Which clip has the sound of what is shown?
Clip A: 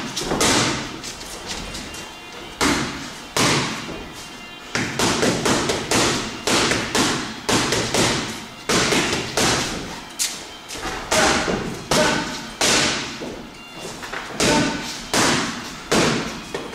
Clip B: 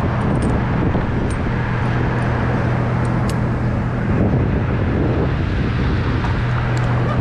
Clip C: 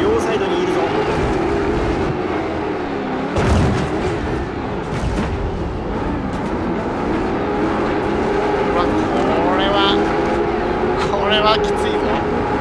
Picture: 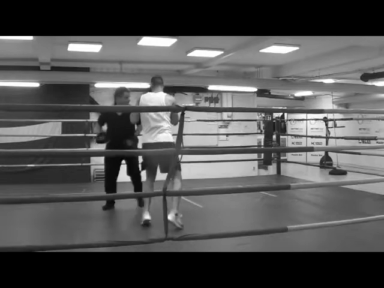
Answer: A